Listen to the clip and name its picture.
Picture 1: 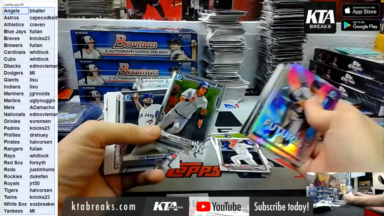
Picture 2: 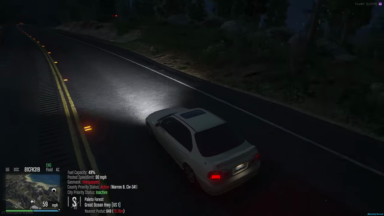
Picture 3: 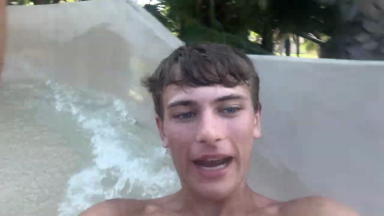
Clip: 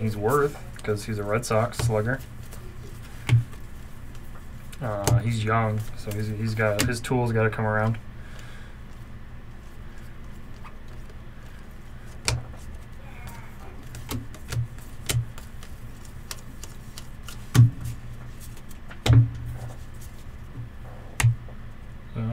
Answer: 1